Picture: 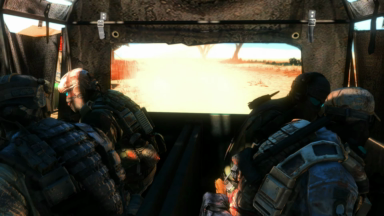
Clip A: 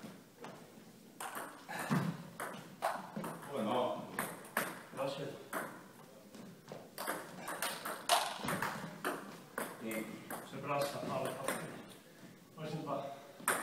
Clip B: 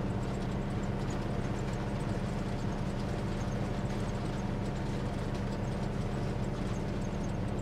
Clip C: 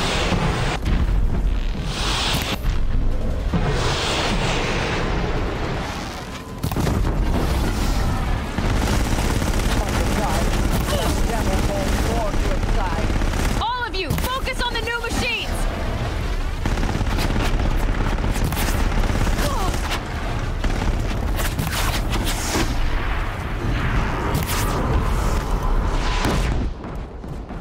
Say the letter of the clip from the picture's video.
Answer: B